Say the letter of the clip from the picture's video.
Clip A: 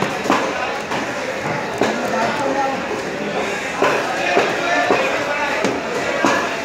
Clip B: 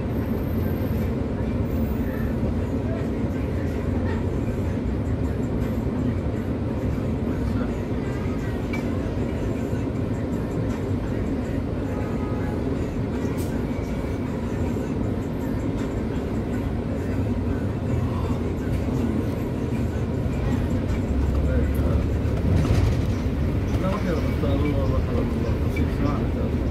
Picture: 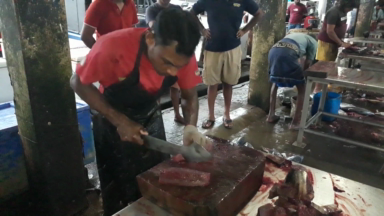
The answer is A